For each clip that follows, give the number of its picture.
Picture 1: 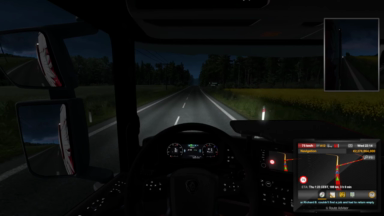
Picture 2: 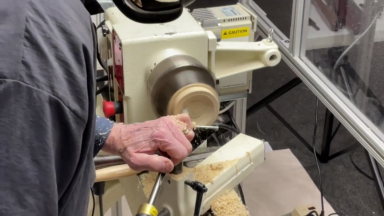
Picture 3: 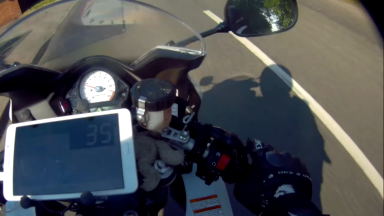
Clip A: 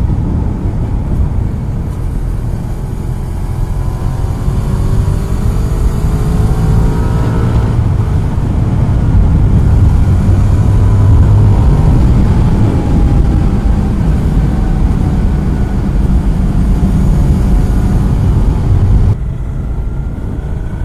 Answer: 3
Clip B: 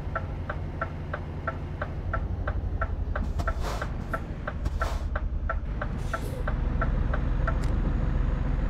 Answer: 1